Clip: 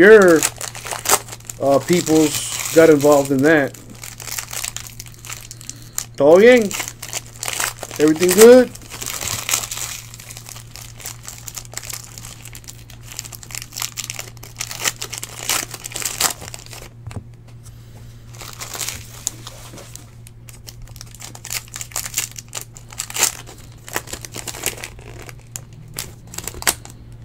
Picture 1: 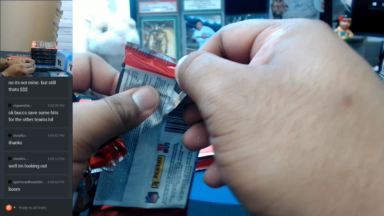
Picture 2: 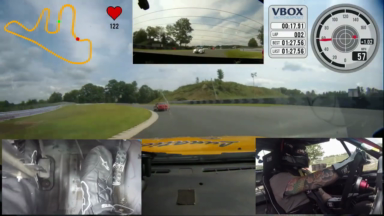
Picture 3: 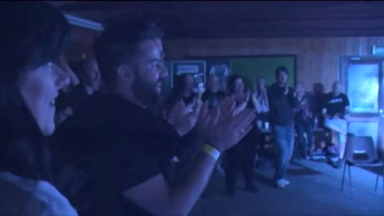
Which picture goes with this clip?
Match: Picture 1